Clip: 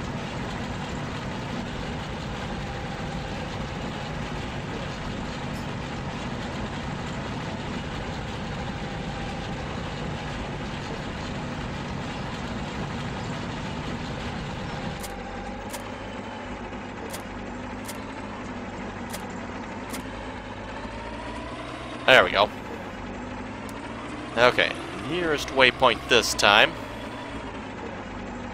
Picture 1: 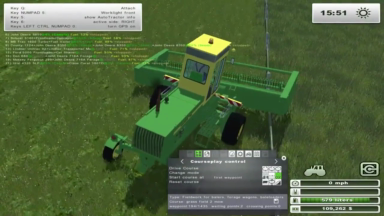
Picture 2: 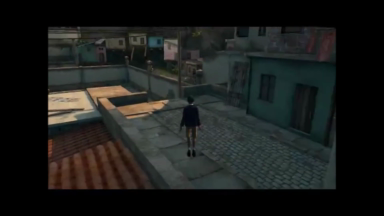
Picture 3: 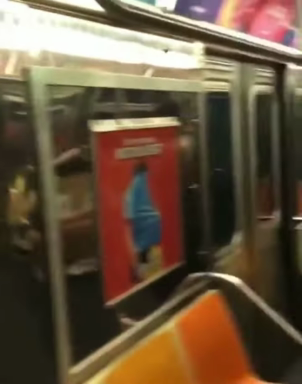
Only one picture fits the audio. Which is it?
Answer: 1